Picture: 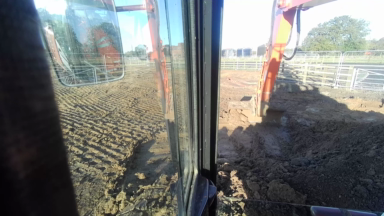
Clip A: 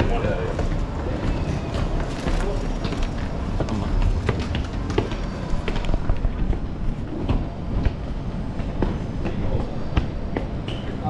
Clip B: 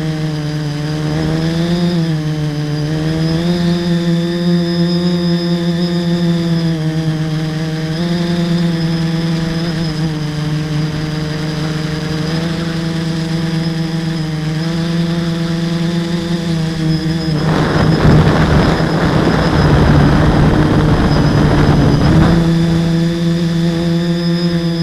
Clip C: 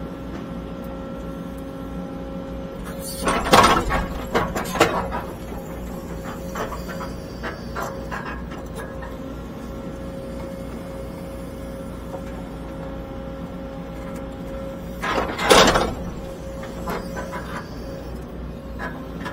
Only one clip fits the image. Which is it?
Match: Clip C